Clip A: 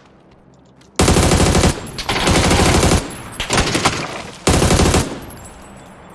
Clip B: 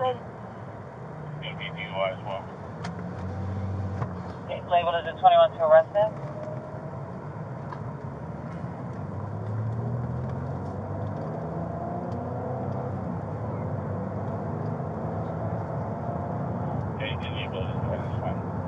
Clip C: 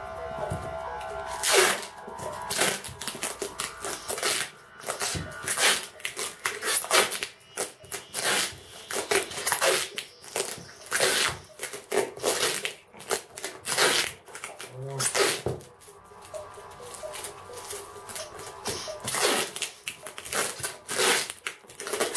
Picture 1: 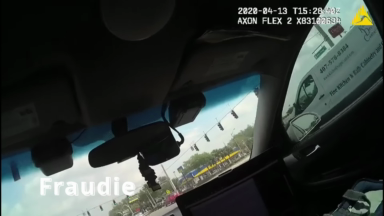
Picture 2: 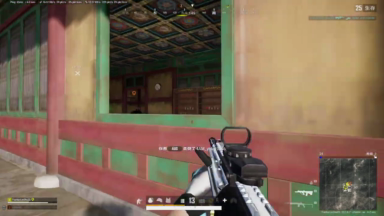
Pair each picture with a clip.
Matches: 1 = B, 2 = A